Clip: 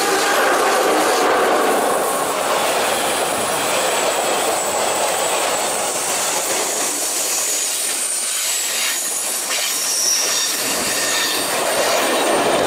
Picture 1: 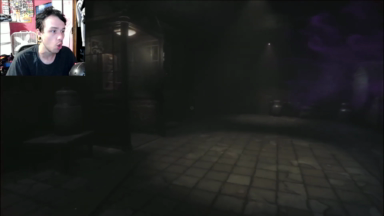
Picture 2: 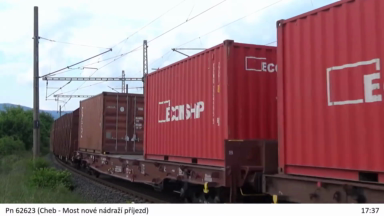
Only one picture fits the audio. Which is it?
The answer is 2